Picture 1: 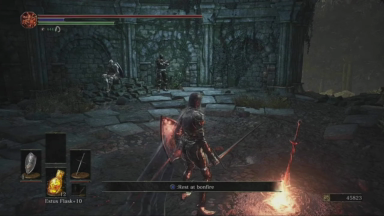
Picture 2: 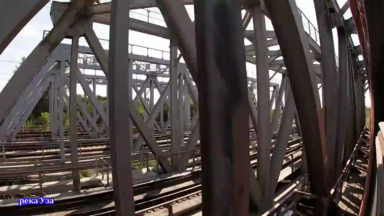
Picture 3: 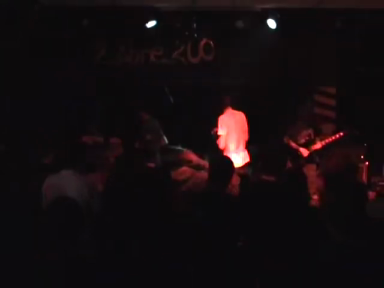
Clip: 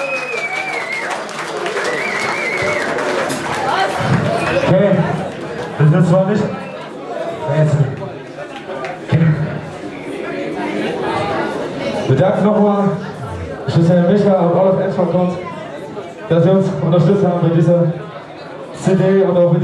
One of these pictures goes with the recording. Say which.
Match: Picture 3